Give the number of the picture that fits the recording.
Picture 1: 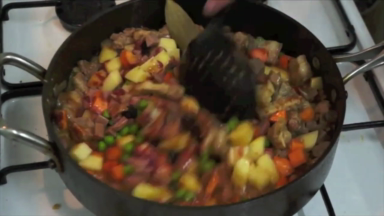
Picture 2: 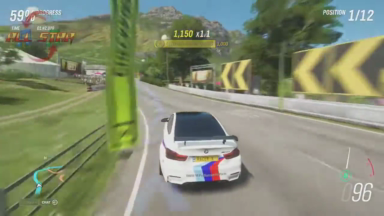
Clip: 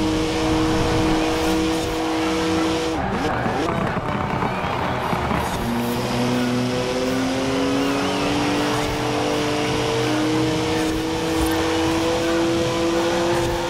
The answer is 2